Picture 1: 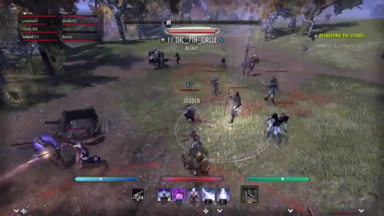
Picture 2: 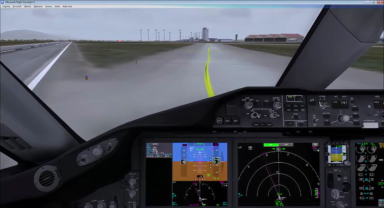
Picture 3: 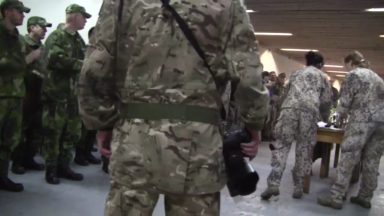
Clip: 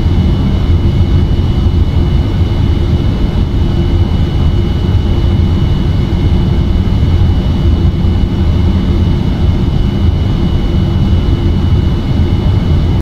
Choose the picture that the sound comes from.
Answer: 2